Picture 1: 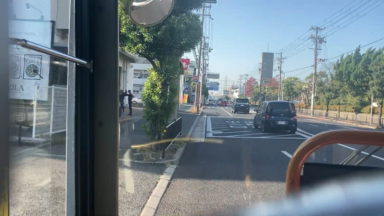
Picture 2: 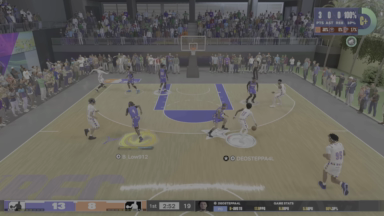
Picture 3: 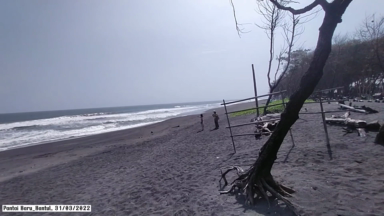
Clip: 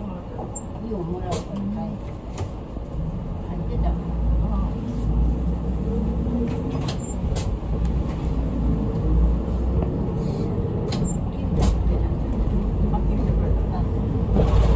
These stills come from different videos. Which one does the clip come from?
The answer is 1